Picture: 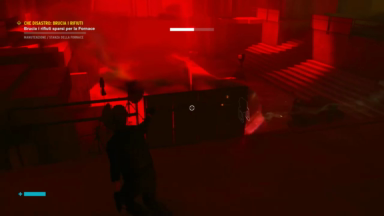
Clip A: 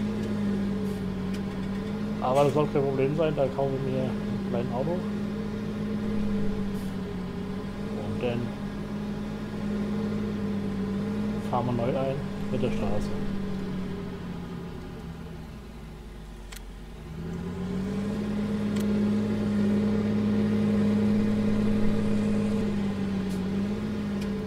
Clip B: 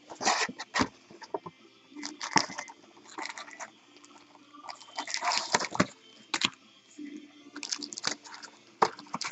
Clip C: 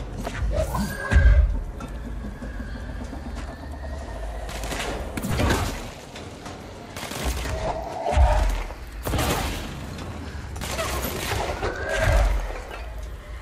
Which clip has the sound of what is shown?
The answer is C